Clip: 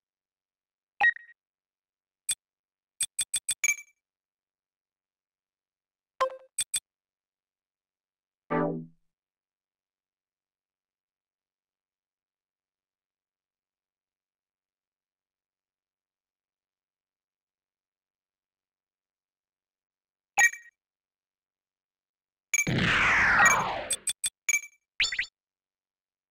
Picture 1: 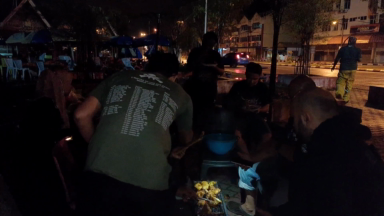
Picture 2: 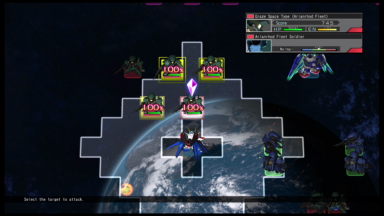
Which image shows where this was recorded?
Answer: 2